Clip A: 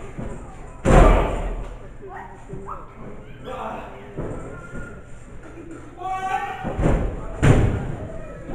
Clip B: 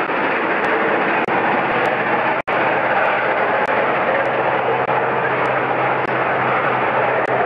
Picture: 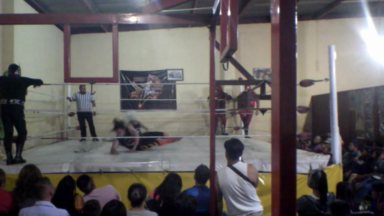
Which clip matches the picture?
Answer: A